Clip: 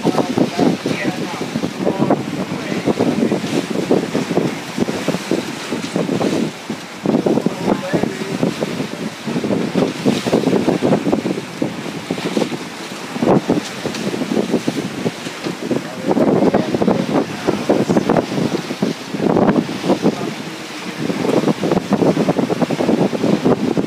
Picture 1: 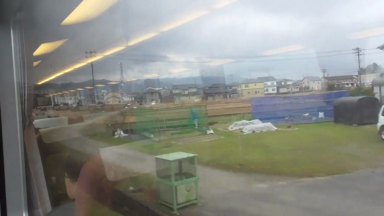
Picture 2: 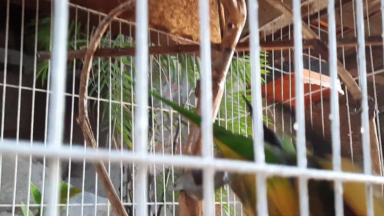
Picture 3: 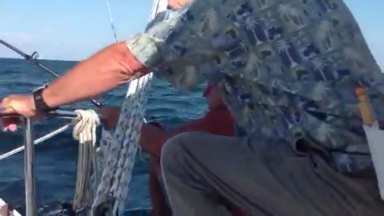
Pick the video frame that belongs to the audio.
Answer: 3